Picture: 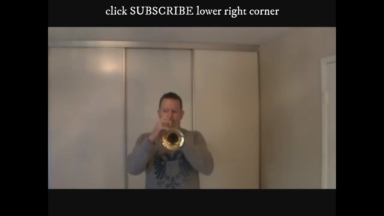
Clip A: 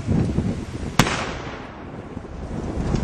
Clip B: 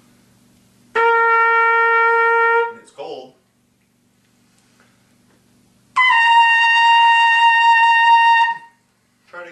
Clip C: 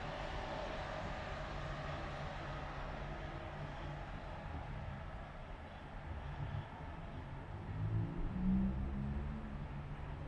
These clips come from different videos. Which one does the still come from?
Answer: B